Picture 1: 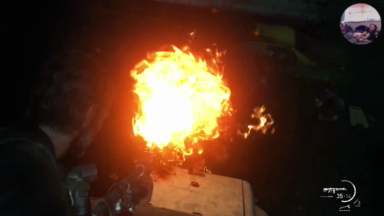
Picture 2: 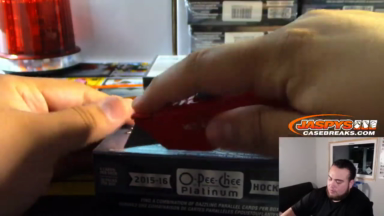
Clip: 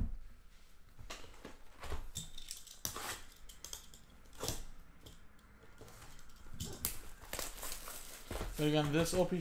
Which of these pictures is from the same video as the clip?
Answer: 2